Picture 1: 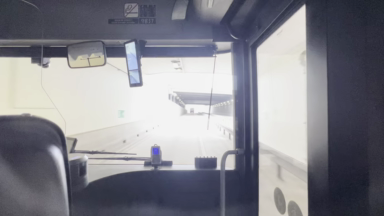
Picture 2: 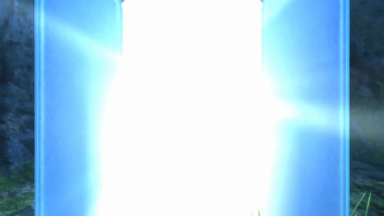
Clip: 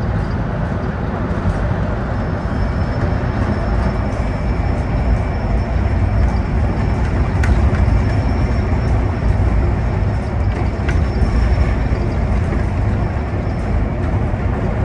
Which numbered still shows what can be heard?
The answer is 1